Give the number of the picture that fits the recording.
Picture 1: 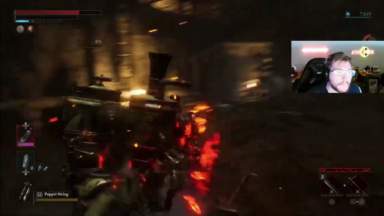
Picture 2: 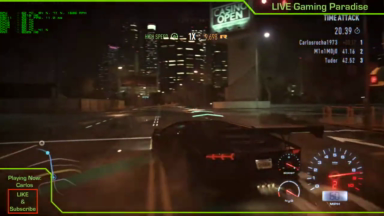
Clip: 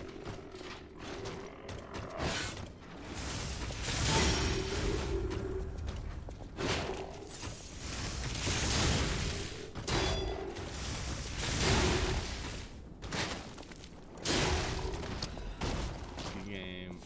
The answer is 1